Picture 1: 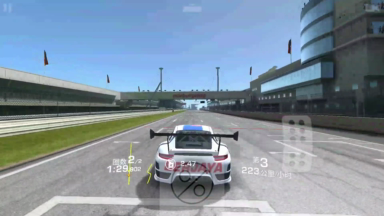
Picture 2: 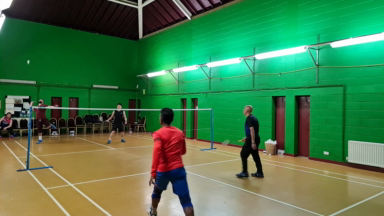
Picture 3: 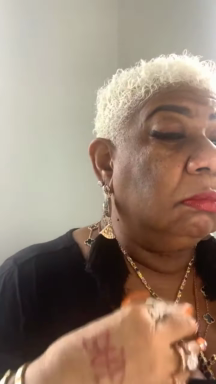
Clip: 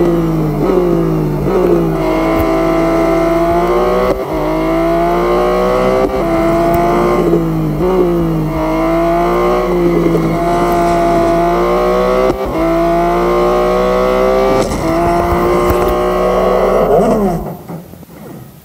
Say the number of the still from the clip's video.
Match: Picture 1